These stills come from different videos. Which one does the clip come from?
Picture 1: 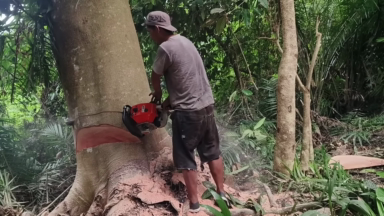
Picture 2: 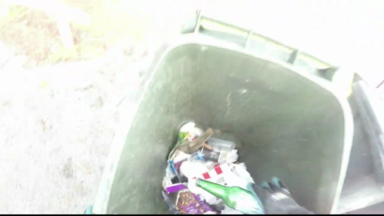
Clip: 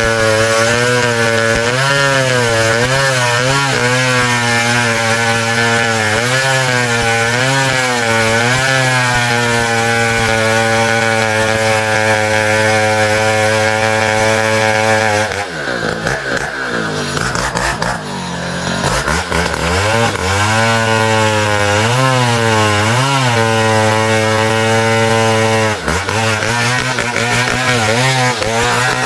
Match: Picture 1